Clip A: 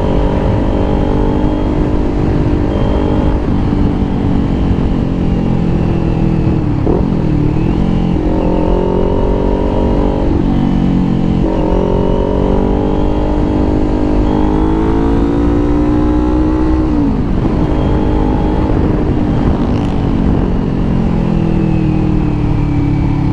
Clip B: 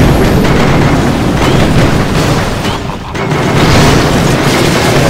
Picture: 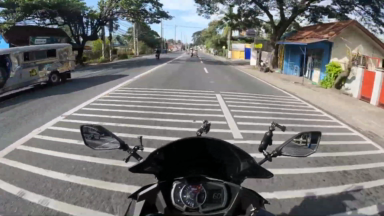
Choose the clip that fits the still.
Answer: A